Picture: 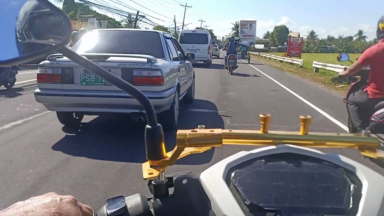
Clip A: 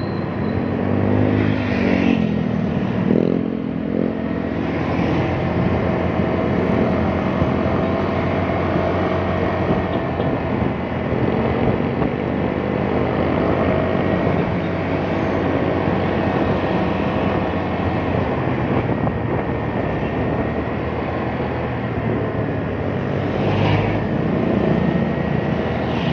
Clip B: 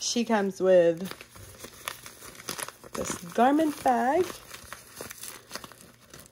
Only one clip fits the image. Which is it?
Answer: A